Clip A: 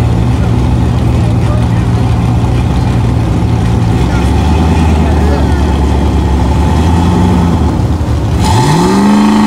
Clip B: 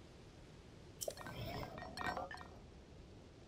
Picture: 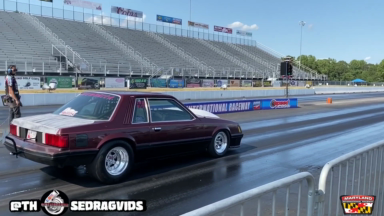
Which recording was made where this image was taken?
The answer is A